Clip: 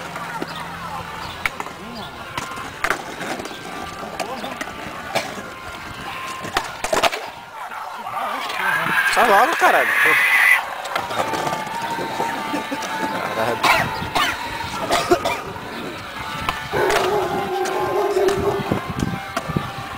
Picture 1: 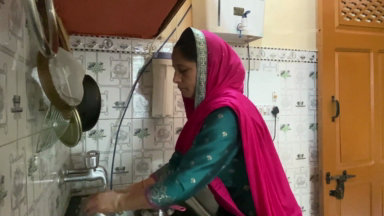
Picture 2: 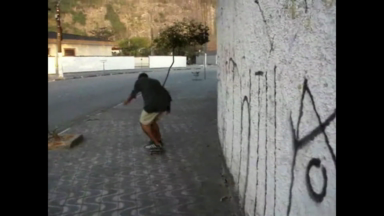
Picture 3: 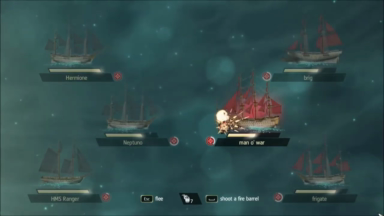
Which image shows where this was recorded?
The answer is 2